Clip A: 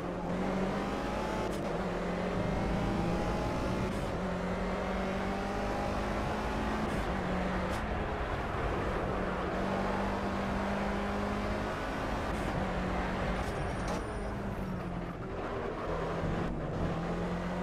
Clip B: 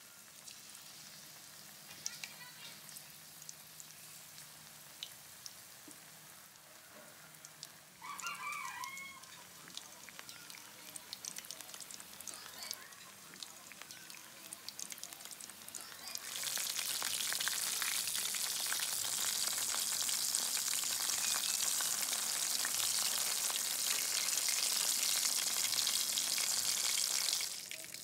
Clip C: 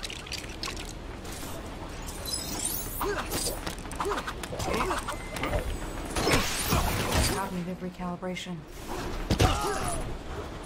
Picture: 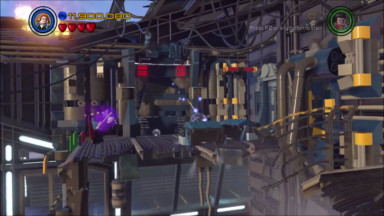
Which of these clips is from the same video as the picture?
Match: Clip C